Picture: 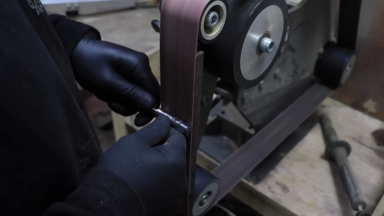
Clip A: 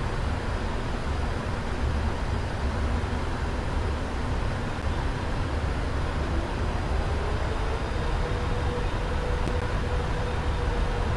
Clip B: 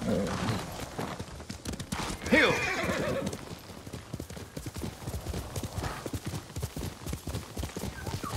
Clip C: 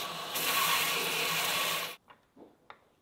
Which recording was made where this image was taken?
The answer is C